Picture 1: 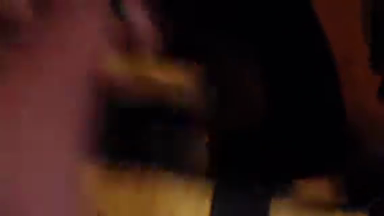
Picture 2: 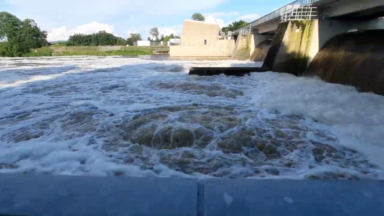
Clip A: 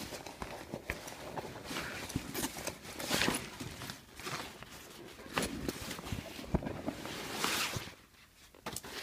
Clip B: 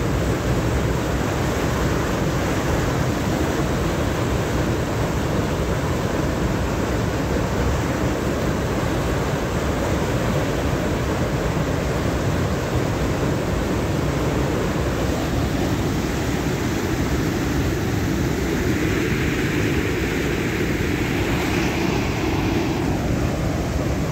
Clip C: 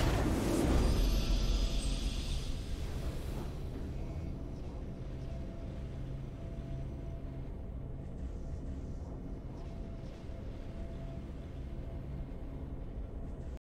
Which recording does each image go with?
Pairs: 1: A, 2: B